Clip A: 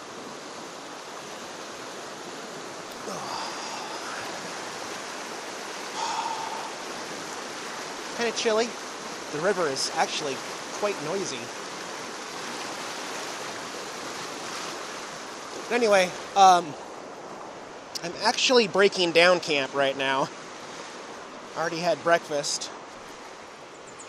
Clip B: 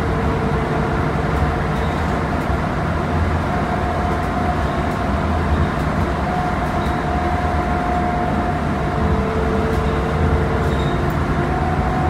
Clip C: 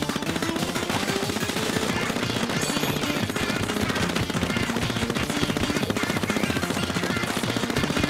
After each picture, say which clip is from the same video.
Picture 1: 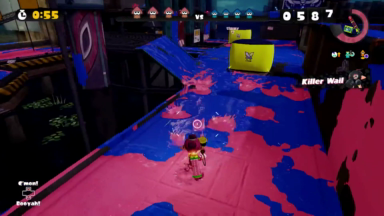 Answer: C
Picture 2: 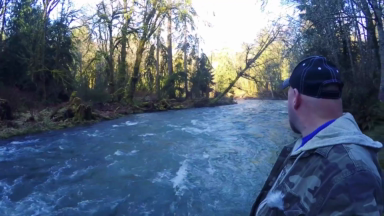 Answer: A